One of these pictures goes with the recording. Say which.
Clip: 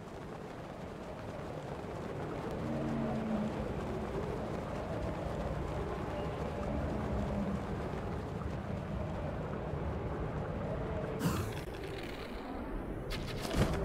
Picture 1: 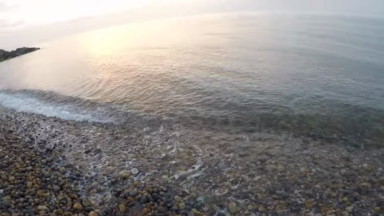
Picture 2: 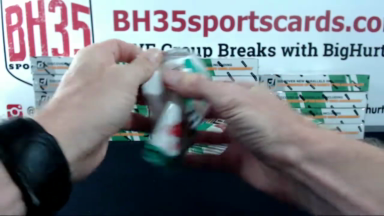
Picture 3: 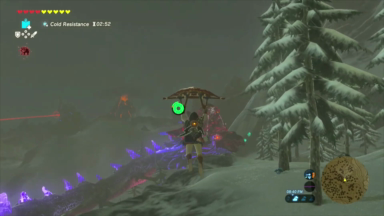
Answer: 3